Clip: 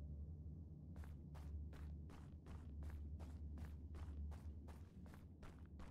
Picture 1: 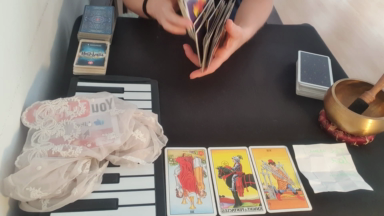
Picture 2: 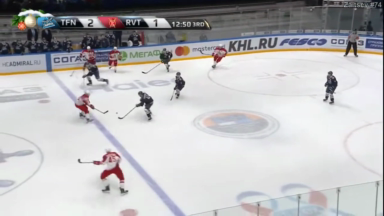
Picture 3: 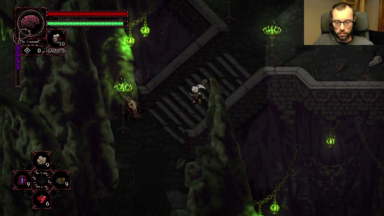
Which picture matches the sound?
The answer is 3